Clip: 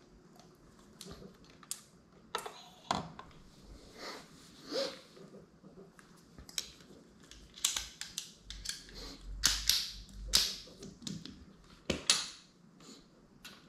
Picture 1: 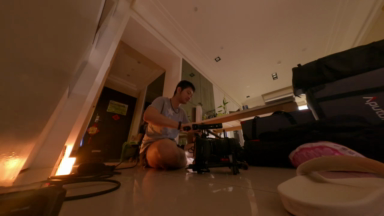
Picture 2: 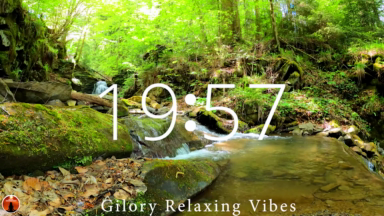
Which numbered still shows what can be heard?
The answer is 1